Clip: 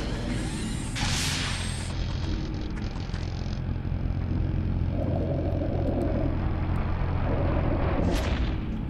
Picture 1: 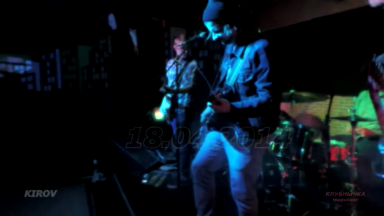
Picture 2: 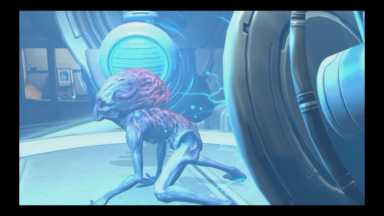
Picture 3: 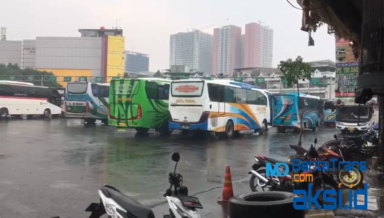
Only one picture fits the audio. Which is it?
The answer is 2